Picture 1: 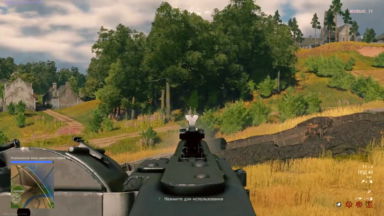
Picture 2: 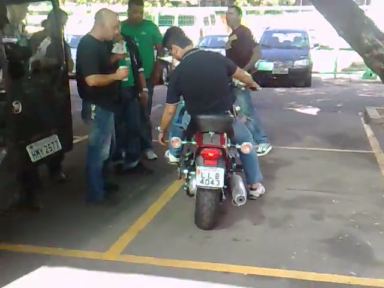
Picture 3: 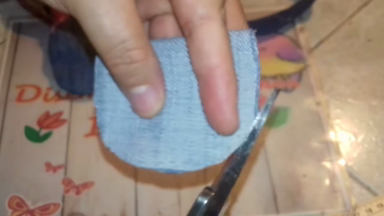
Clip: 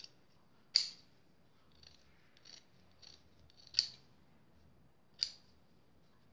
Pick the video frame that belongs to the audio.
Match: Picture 3